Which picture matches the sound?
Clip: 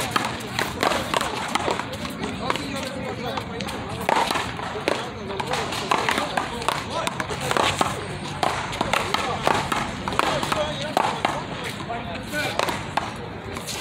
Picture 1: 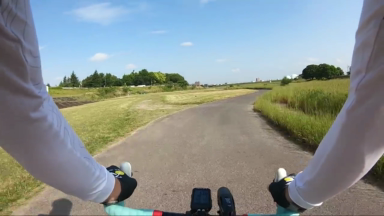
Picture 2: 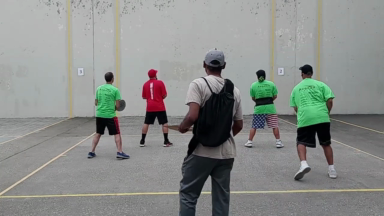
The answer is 2